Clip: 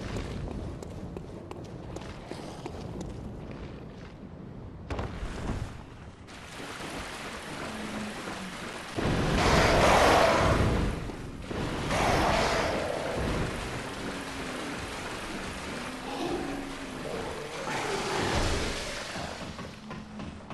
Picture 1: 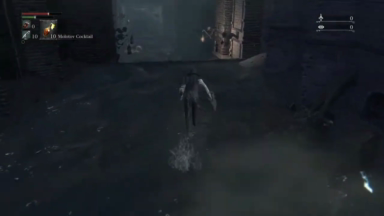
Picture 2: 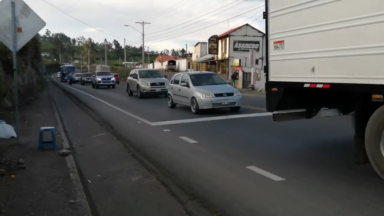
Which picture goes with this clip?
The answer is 1